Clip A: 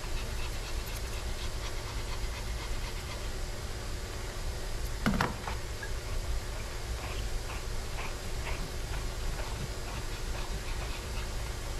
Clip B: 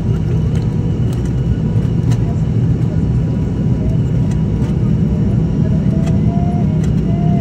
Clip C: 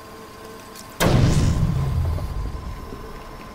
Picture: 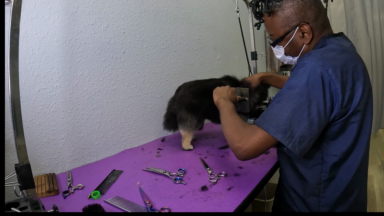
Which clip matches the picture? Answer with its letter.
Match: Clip A